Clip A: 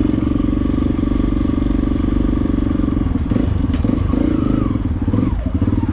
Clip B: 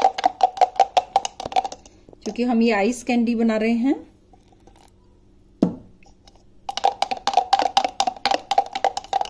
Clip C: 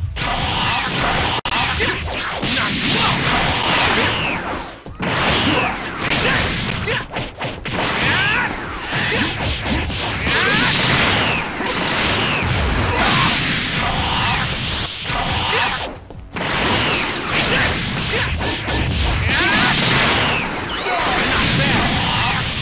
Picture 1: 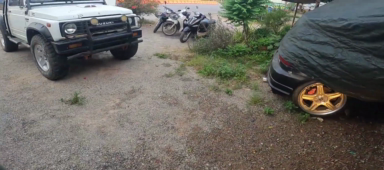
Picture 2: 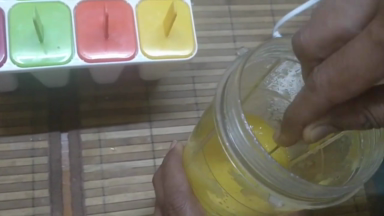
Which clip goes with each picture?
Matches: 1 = A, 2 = B